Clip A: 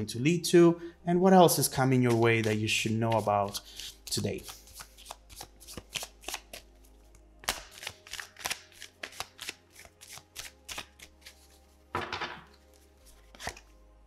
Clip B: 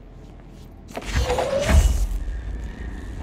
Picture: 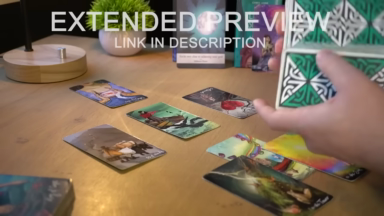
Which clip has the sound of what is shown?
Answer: A